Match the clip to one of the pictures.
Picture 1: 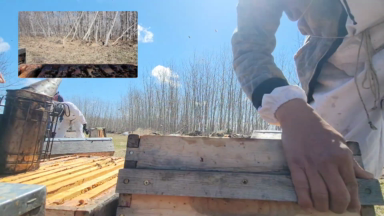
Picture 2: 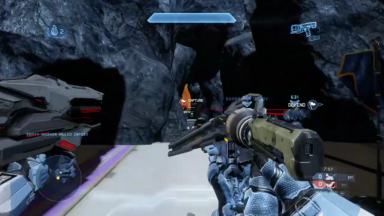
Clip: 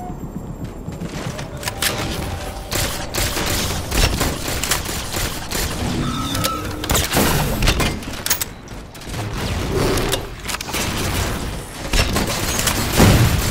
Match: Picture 2